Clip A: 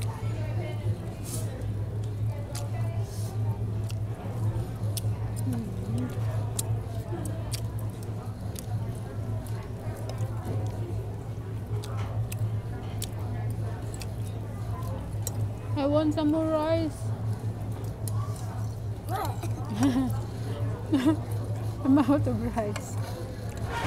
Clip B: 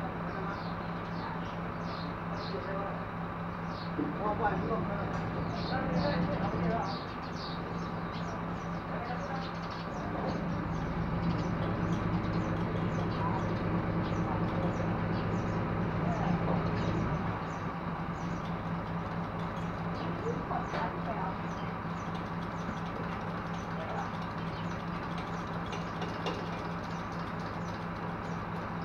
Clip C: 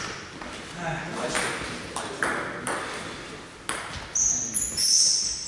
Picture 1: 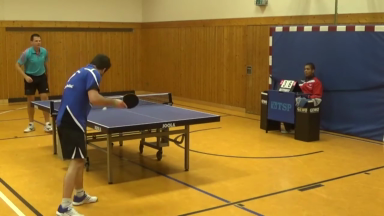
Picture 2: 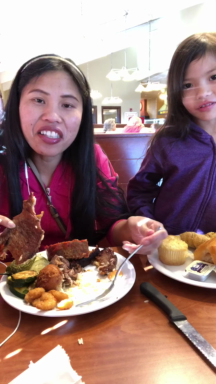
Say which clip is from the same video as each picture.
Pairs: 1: C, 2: A